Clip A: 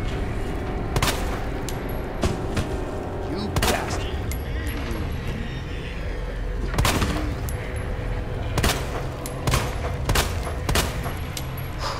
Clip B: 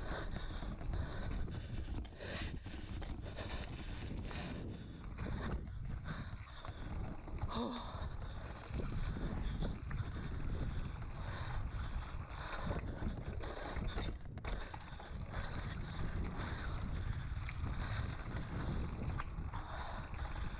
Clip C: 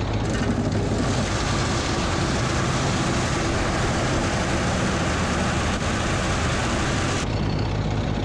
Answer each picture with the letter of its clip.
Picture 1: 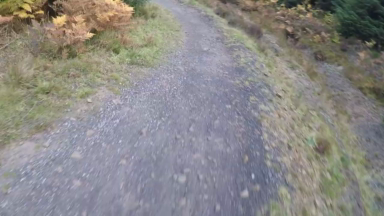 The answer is B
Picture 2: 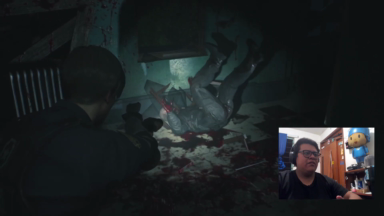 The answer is A